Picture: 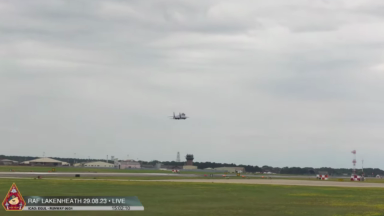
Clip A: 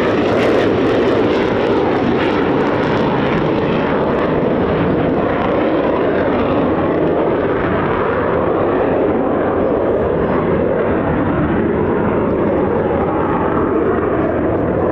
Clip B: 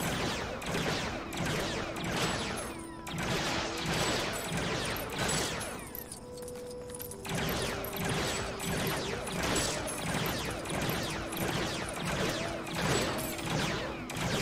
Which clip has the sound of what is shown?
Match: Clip A